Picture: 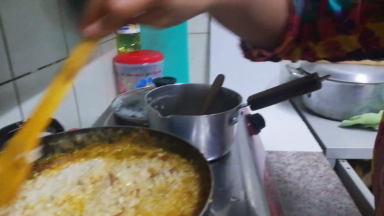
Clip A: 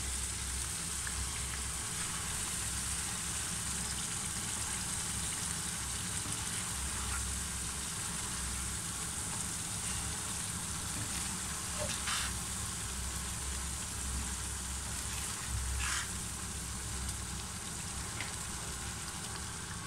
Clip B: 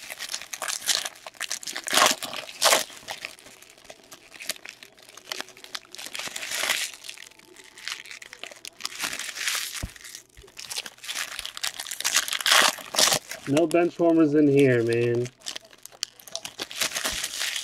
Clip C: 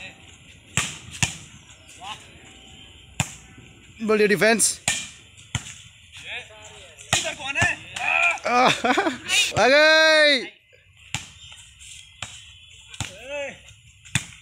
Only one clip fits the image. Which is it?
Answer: A